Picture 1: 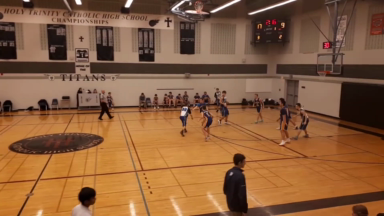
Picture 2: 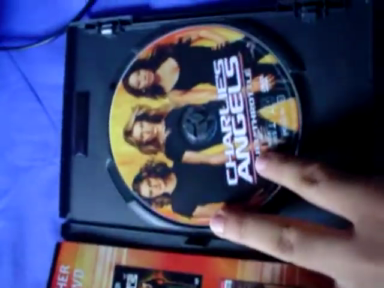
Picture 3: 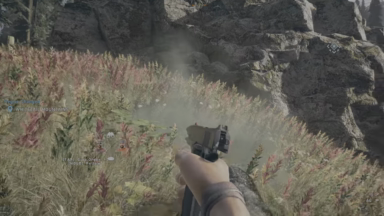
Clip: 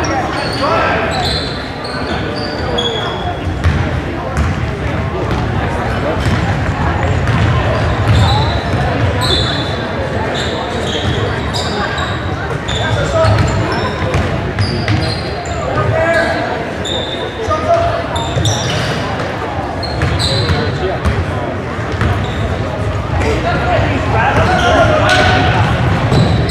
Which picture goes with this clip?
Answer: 1